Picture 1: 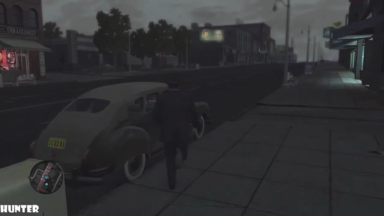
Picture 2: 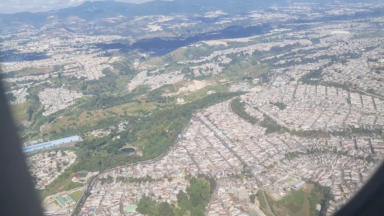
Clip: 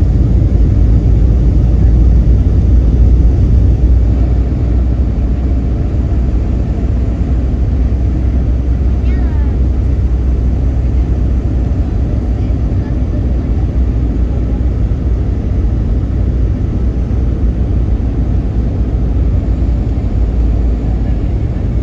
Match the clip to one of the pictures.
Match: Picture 2